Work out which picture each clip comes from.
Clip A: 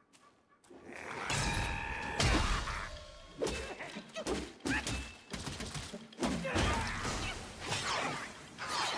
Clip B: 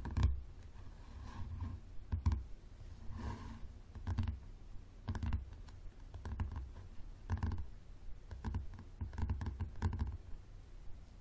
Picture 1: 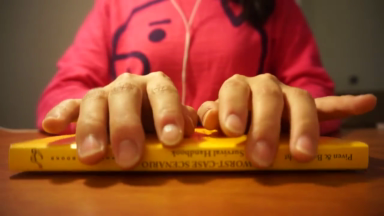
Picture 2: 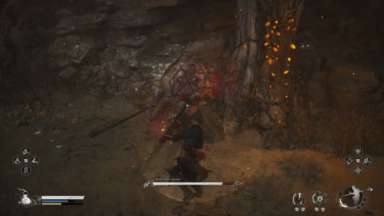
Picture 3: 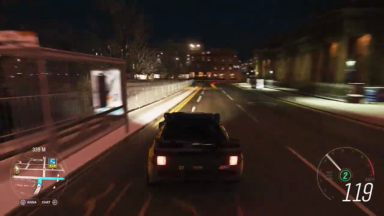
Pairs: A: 2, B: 1